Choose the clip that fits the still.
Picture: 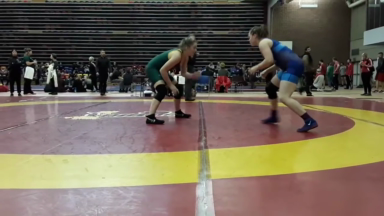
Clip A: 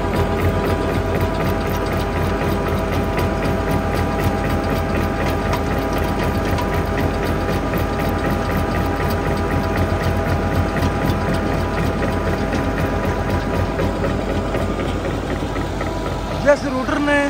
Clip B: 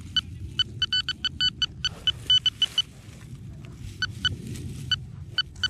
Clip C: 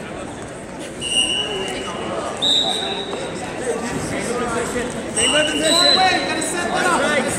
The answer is C